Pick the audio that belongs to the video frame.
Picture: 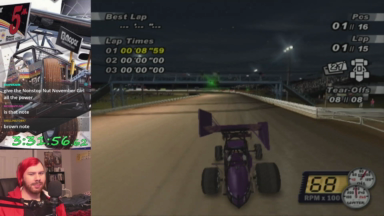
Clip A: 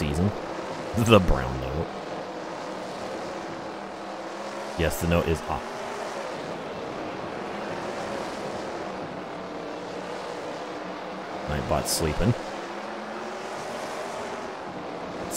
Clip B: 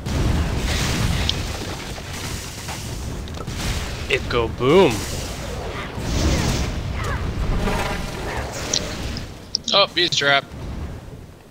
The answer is A